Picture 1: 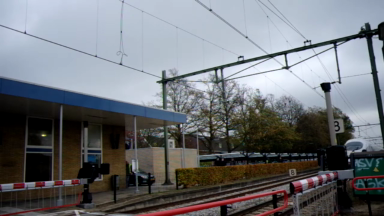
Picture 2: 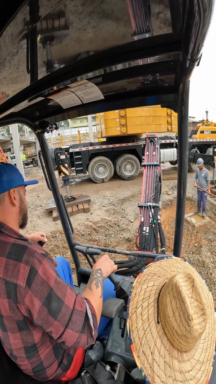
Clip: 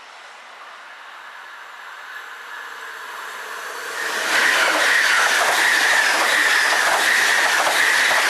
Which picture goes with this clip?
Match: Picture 1